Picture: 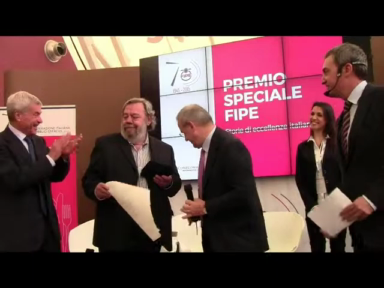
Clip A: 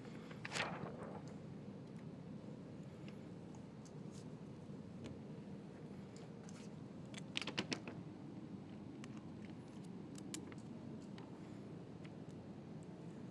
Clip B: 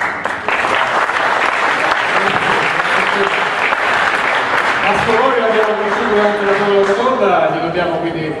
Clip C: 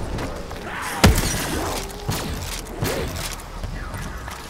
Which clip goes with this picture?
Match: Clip B